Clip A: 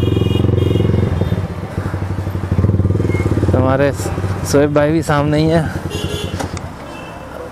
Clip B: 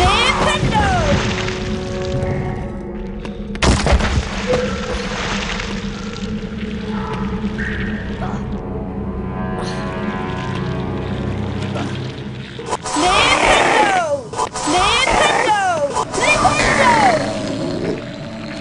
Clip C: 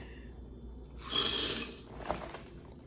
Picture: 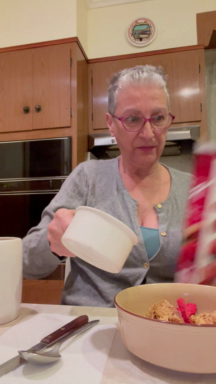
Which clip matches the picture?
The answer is C